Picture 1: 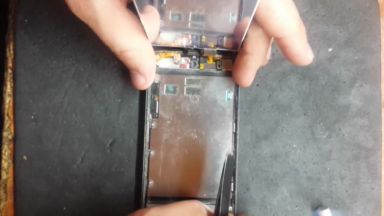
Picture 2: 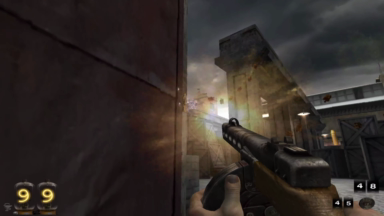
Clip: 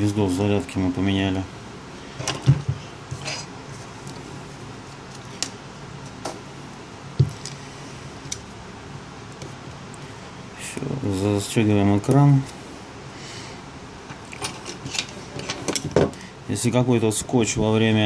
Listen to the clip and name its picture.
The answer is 1